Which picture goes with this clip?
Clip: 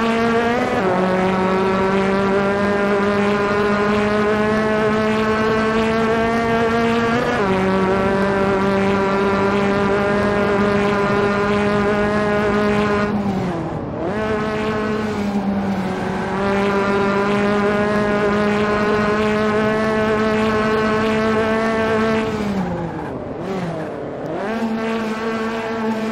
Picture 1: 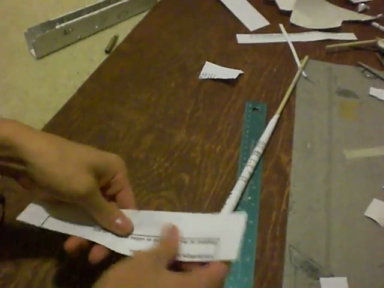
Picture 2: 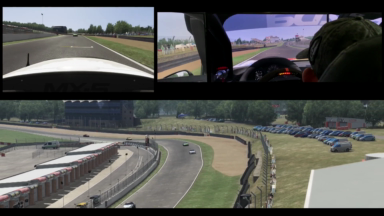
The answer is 2